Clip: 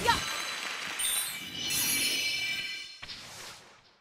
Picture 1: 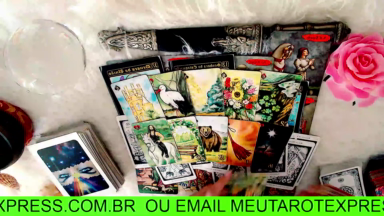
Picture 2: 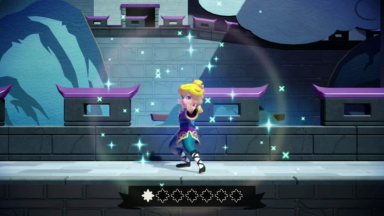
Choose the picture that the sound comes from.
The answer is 2